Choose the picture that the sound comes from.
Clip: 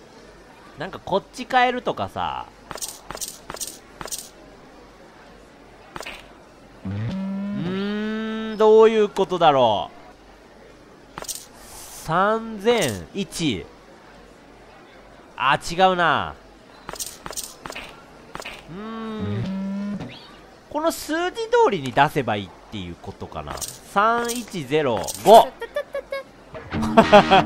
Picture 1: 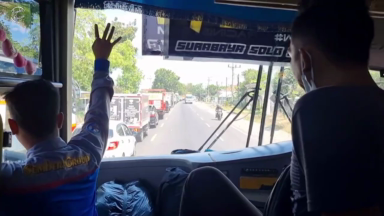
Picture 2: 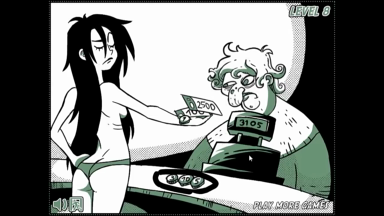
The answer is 2